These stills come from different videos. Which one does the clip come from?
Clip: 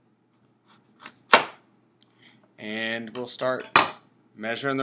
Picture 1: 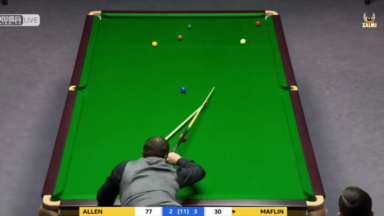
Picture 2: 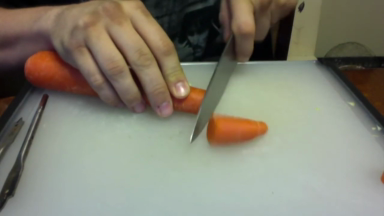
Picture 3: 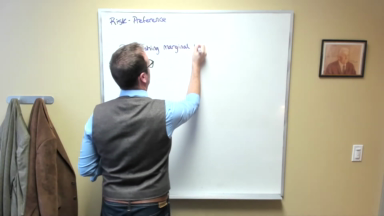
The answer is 2